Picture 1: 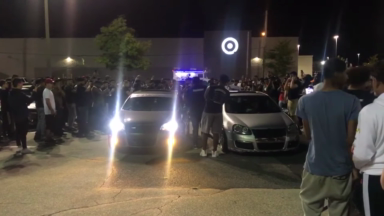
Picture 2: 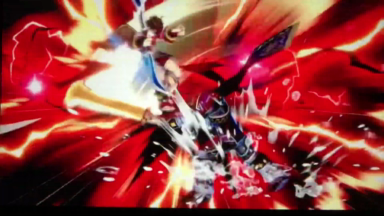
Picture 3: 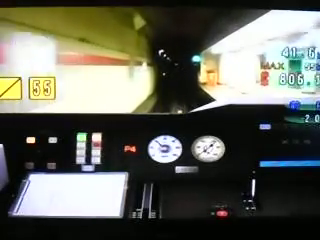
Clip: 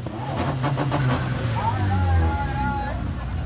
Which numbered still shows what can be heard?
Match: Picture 1